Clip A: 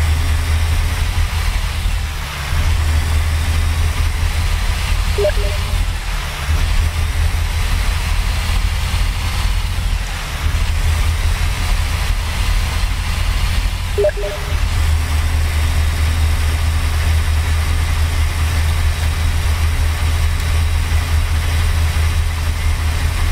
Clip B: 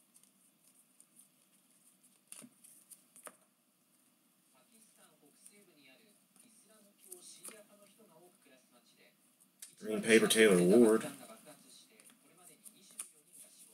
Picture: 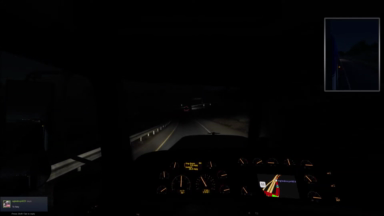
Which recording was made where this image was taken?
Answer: A